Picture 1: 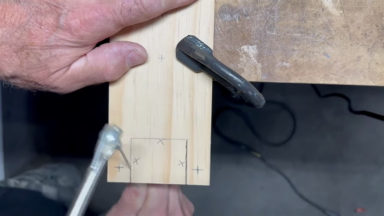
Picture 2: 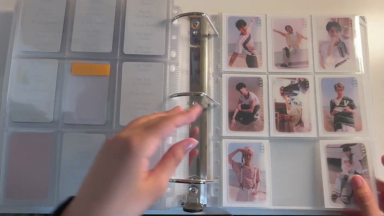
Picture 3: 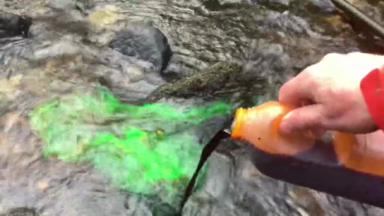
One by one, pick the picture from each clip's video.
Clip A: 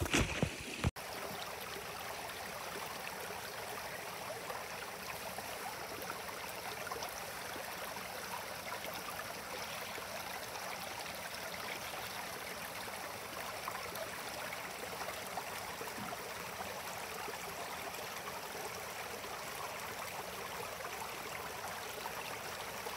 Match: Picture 3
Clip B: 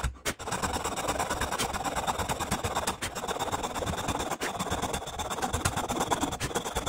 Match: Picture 1